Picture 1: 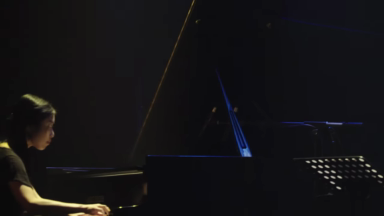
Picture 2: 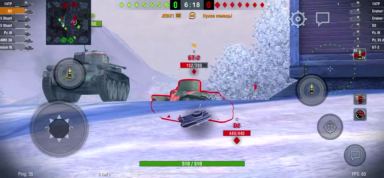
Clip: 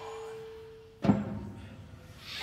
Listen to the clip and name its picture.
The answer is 1